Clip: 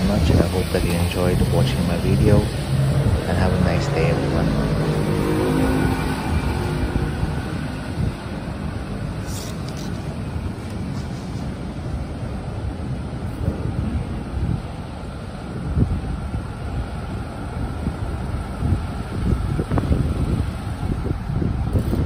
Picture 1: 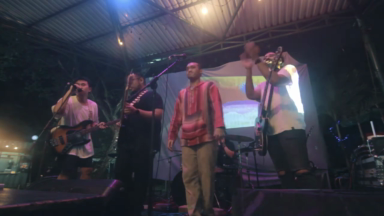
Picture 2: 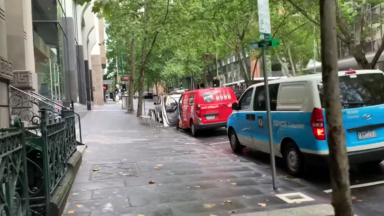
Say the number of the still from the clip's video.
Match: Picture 2